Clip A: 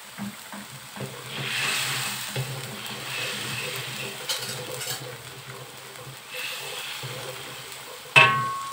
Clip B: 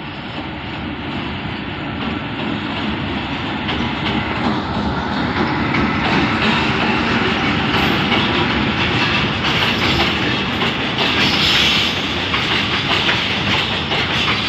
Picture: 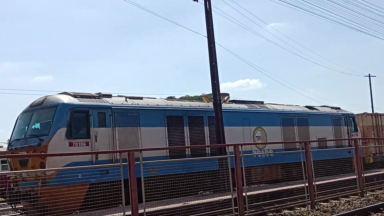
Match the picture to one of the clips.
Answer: B